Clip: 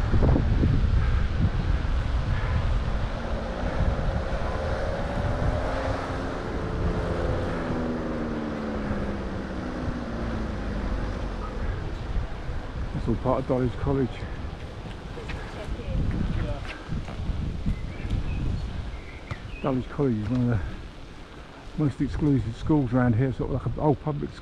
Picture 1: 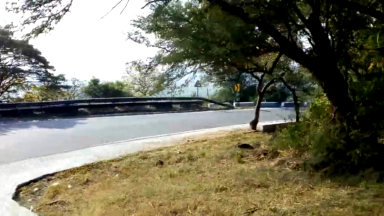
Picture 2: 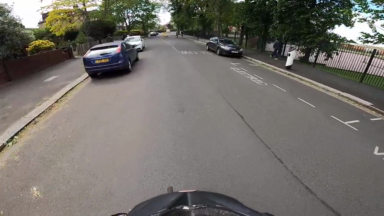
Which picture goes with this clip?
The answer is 2